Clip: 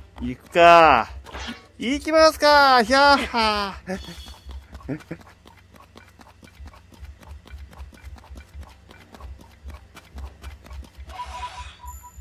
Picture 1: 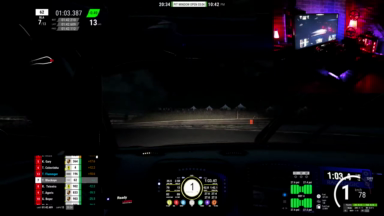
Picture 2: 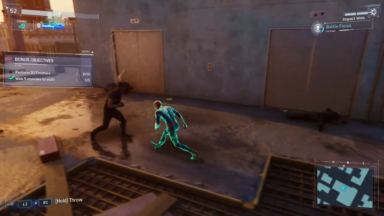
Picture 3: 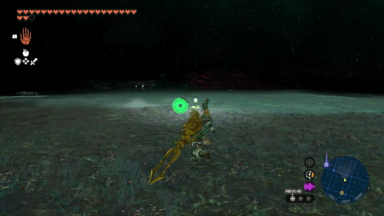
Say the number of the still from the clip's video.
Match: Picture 3